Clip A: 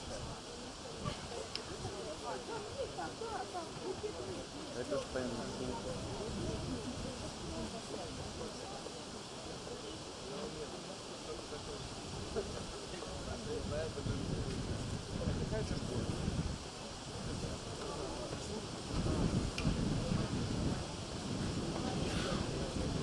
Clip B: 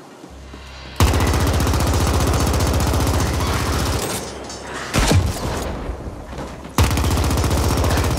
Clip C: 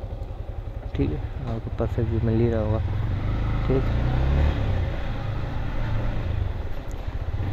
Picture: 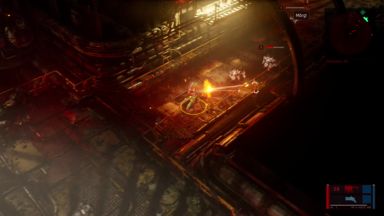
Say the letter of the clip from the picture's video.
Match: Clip B